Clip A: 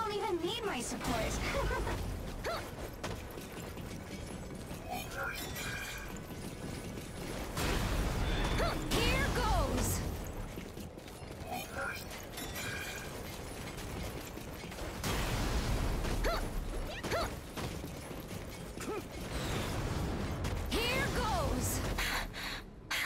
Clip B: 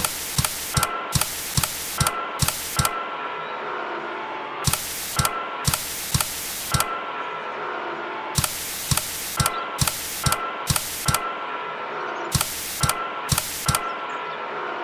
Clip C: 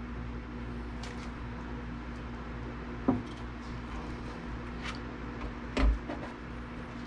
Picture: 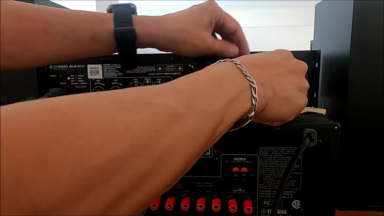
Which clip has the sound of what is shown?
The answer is C